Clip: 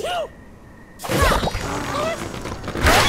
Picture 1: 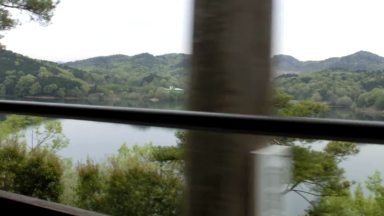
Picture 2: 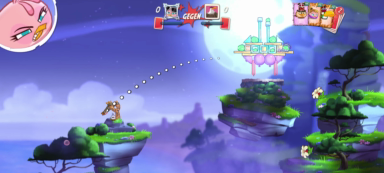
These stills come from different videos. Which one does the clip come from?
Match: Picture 2